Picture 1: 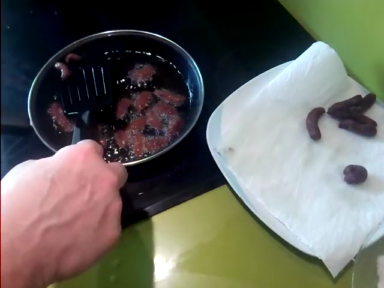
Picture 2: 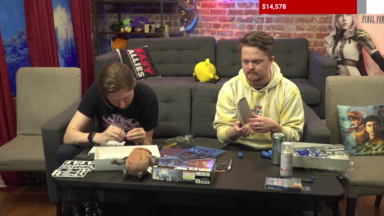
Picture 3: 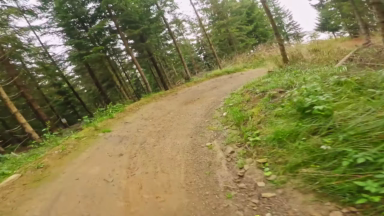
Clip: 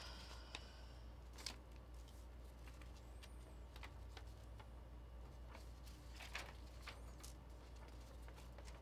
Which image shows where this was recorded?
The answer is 2